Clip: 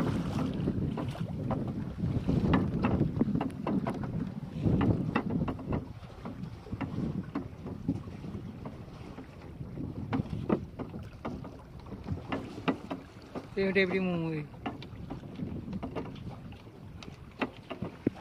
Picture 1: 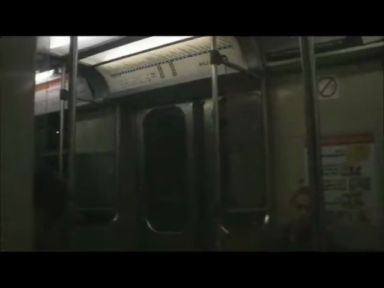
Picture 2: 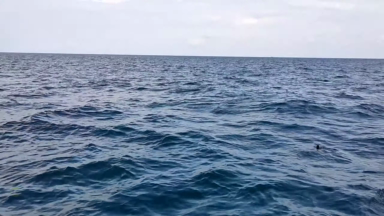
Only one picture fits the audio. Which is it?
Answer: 2